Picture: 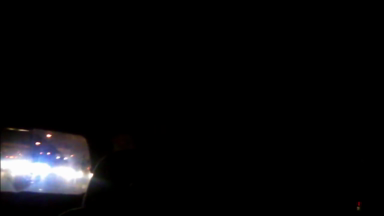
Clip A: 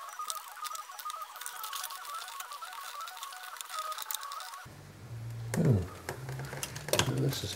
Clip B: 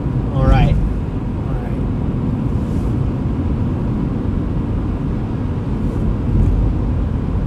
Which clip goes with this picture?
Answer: B